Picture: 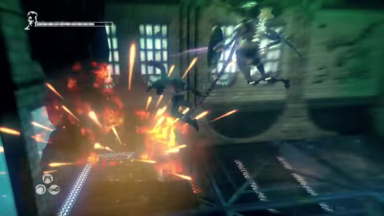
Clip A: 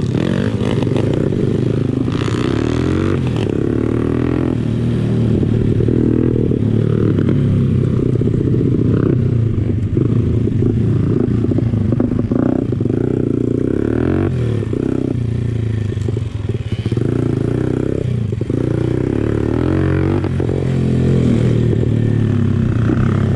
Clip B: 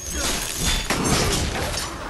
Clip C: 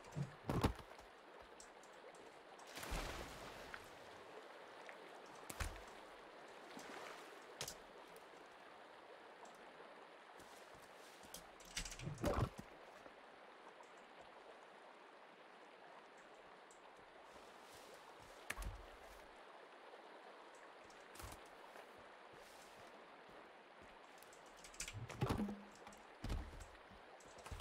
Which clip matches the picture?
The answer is B